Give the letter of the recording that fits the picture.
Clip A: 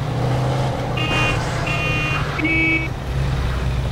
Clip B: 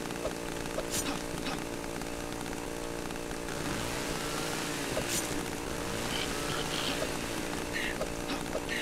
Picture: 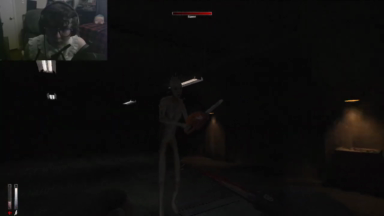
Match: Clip B